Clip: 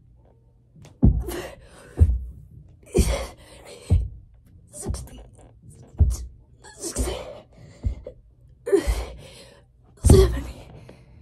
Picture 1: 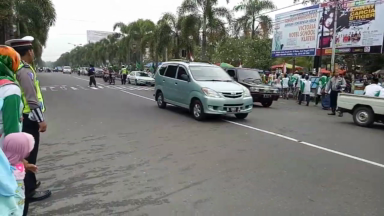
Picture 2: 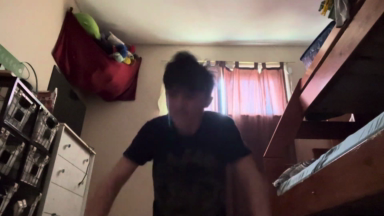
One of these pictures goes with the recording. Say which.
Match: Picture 2